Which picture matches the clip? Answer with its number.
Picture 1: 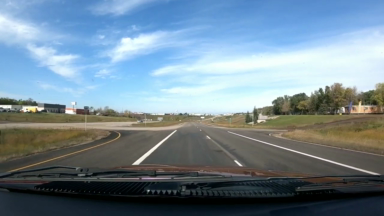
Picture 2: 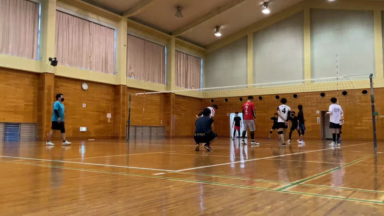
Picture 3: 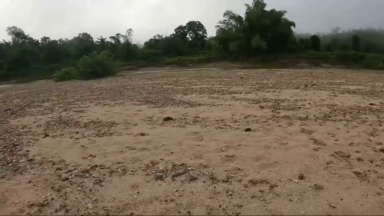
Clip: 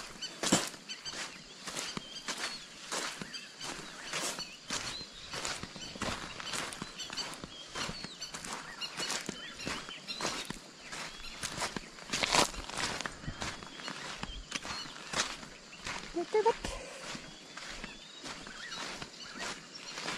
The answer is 3